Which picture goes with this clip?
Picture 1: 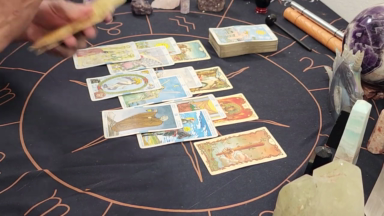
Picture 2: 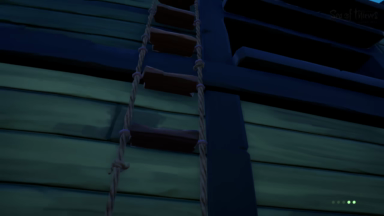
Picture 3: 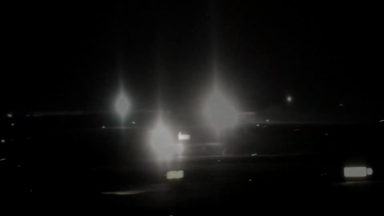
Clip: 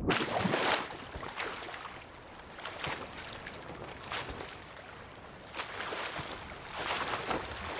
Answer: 2